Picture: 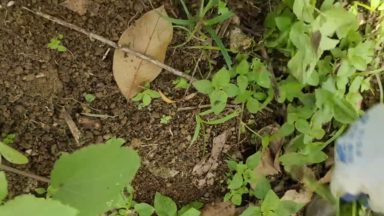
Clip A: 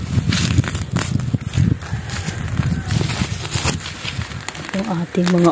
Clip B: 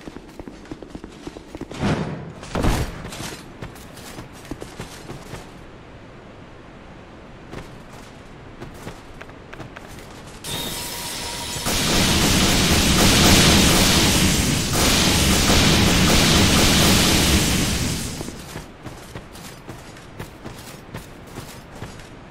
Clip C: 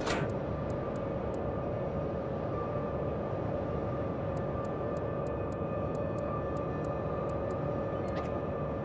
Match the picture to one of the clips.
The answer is A